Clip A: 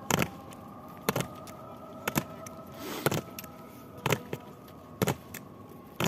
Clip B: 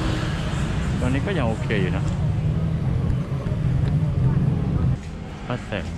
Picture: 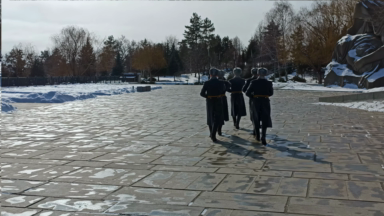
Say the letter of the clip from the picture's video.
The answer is A